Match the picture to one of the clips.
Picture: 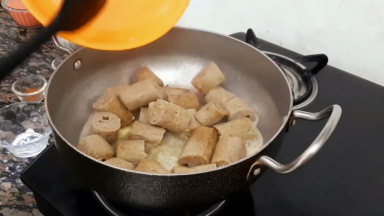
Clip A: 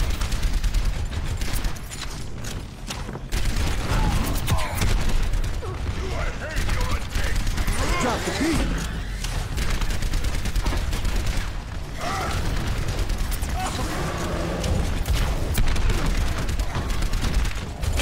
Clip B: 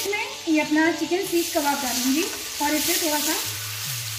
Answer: B